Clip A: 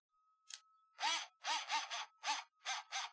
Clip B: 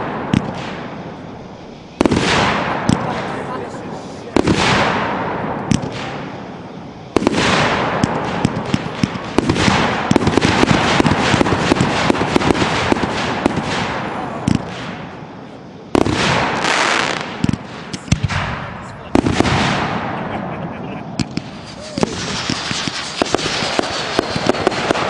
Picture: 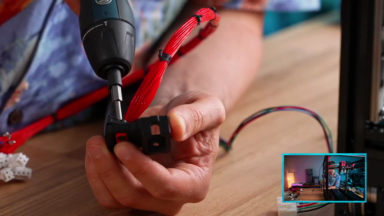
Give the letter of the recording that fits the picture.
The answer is A